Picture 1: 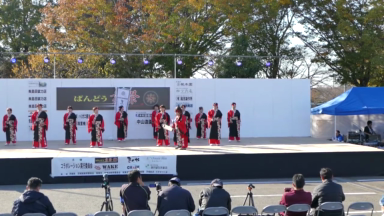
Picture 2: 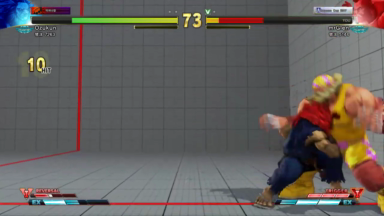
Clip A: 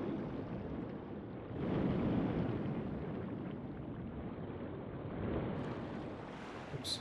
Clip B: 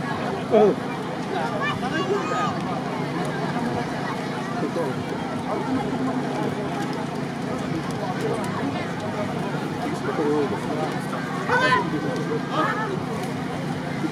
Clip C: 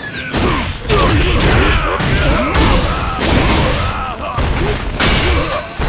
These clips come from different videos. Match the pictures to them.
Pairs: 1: B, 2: C